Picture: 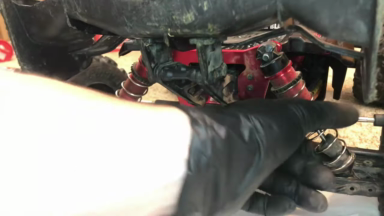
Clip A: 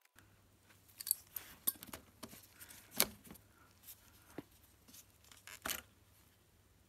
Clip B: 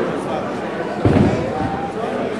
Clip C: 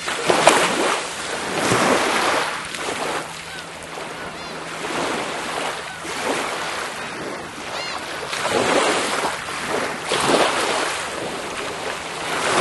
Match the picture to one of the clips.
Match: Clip A